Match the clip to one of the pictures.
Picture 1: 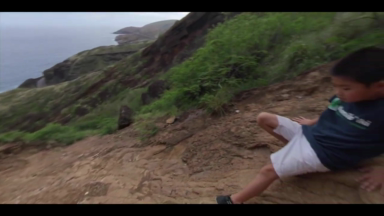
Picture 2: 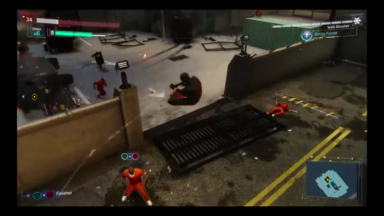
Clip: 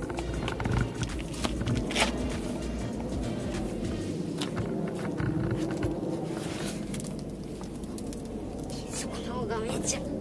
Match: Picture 1